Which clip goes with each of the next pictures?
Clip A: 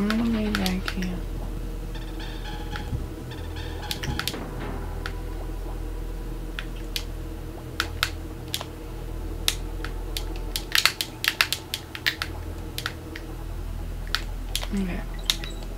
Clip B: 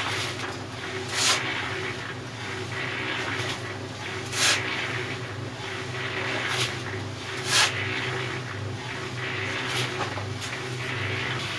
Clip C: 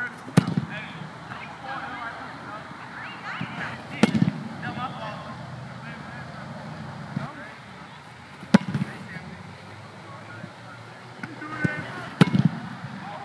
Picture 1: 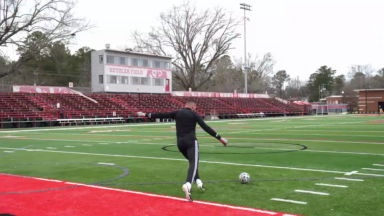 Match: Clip C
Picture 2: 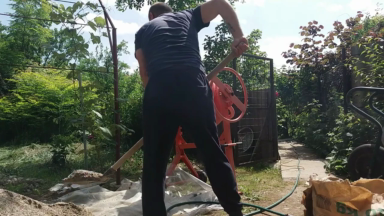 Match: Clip B